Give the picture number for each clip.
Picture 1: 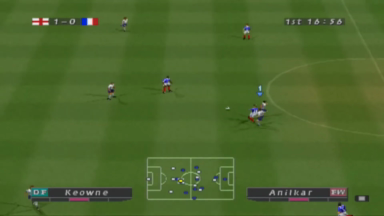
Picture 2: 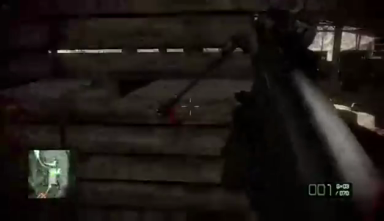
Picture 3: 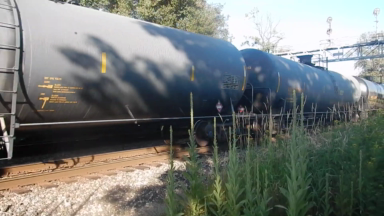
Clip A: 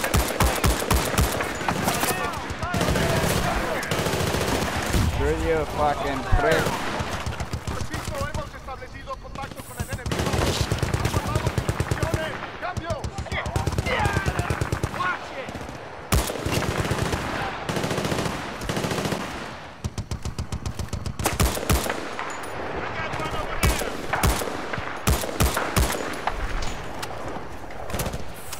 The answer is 2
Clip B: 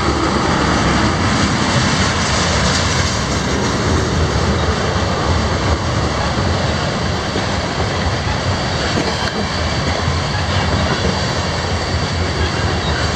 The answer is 3